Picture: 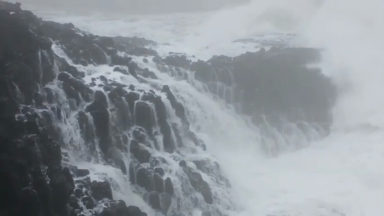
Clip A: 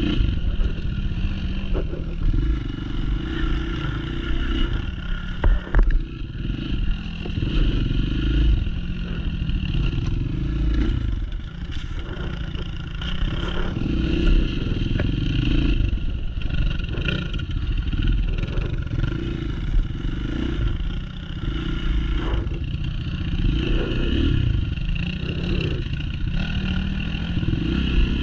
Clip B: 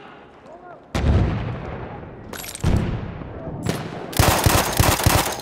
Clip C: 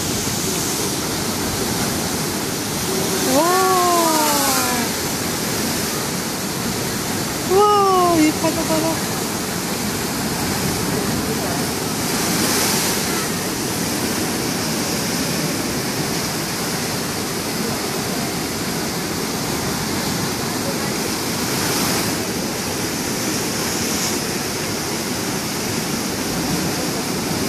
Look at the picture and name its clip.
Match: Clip C